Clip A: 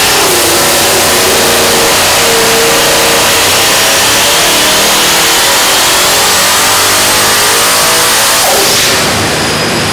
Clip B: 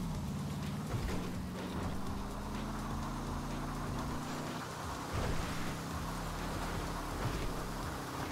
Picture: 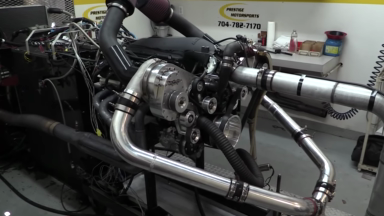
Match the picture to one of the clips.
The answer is A